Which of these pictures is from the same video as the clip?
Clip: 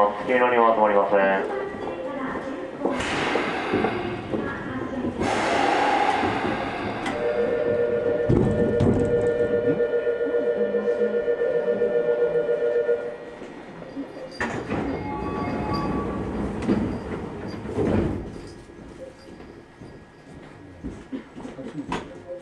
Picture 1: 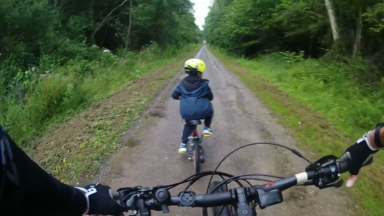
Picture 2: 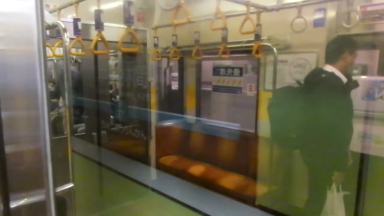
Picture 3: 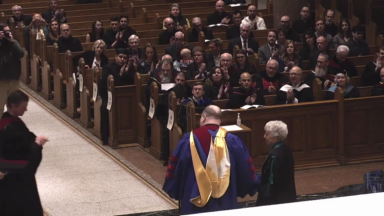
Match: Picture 2